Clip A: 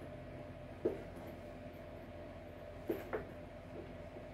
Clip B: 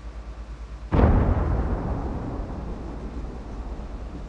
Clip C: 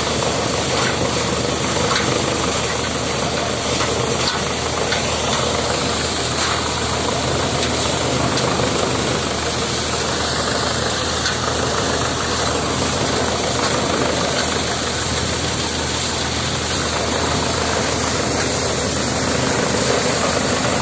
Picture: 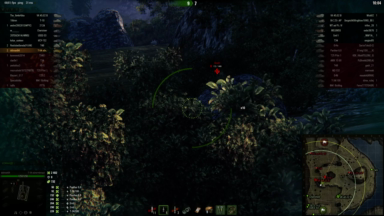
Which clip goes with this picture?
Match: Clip B